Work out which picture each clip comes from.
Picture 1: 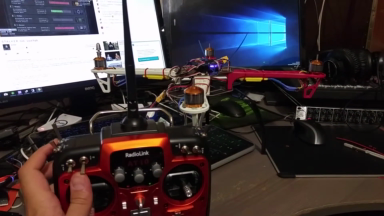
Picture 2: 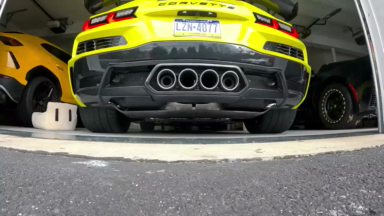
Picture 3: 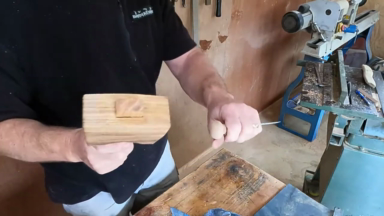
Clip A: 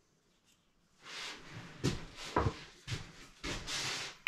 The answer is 3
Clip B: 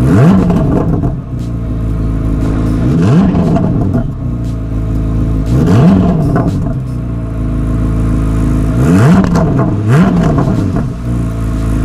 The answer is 2